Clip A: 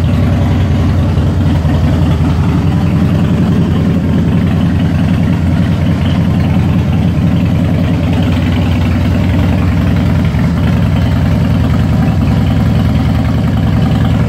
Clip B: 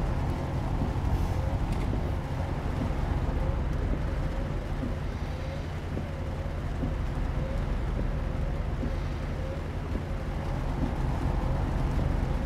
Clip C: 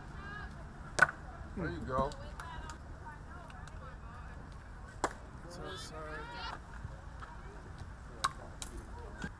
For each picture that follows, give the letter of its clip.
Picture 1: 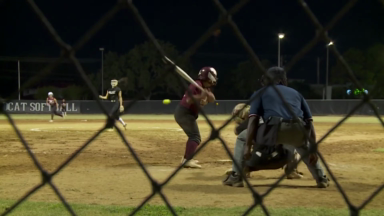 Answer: C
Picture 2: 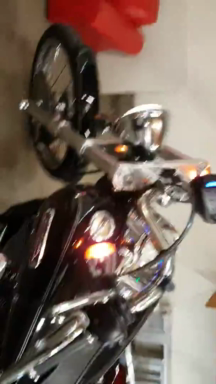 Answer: A